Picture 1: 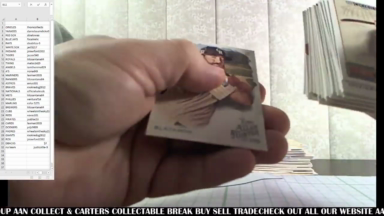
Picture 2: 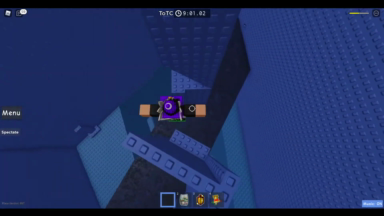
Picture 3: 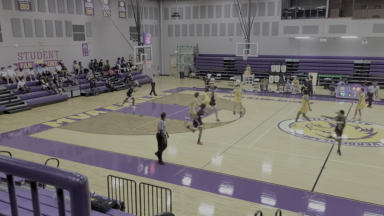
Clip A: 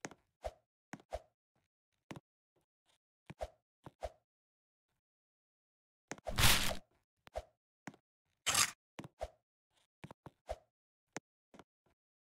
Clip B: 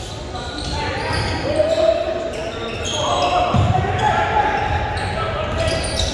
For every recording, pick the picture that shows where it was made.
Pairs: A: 2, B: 3